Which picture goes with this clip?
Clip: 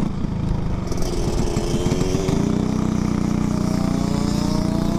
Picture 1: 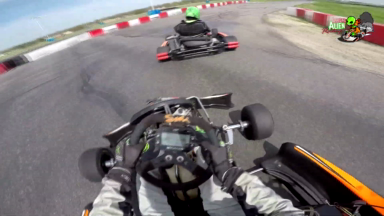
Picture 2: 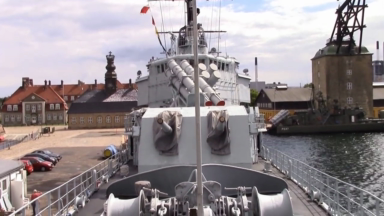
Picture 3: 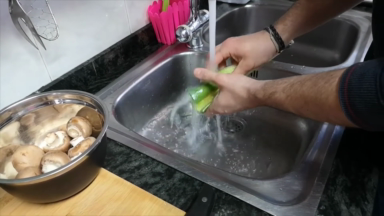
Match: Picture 1